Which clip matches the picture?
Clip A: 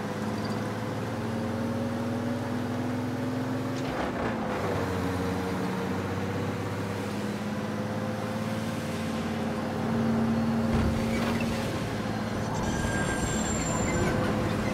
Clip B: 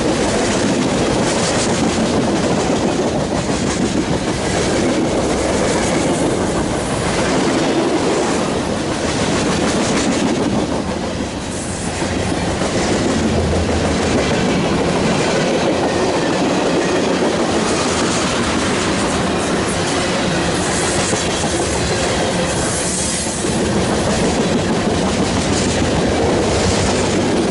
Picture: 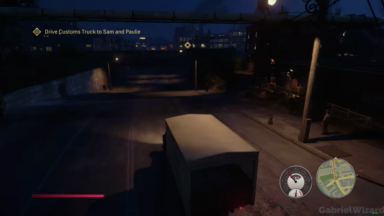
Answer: A